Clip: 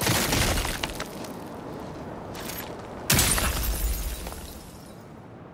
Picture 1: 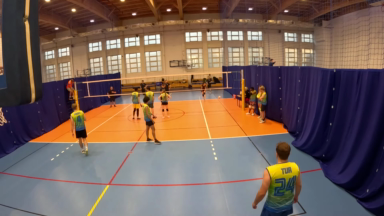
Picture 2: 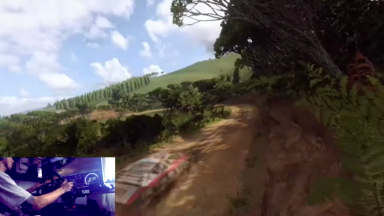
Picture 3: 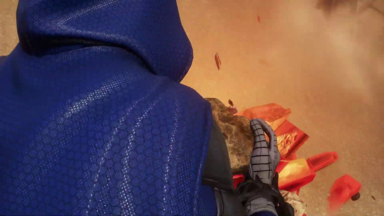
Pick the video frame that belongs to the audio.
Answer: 3